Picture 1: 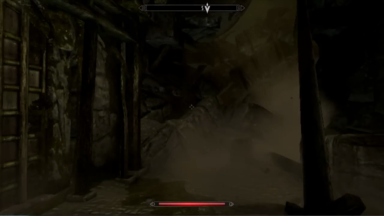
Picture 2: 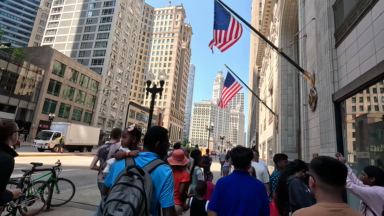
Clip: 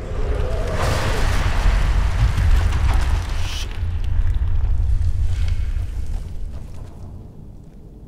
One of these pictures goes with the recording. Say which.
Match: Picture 1